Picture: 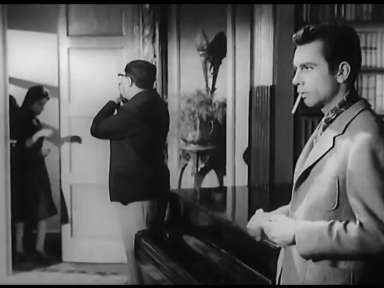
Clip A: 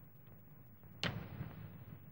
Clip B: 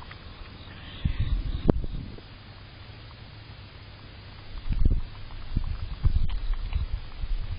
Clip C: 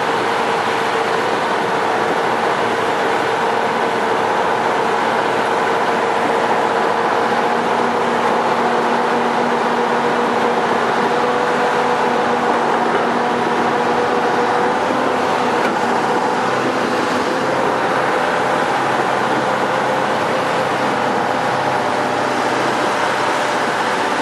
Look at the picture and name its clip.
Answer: A